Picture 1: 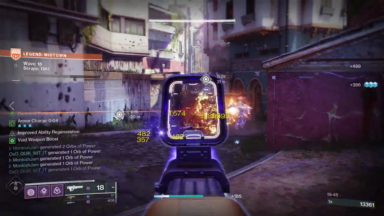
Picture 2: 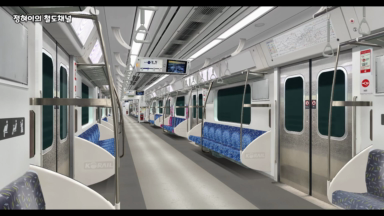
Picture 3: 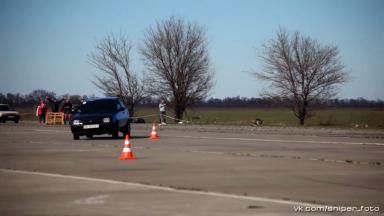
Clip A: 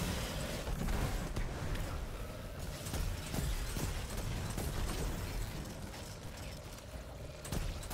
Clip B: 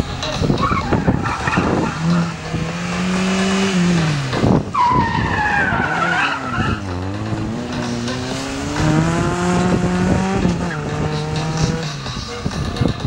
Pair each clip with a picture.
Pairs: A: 1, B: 3